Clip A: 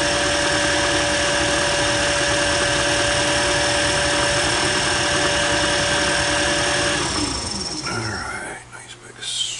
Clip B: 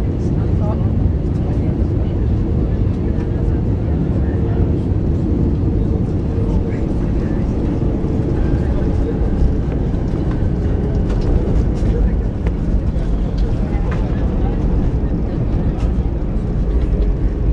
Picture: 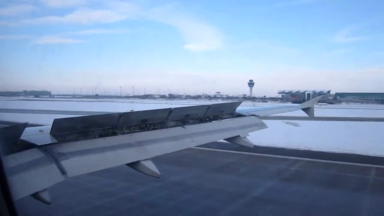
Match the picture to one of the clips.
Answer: B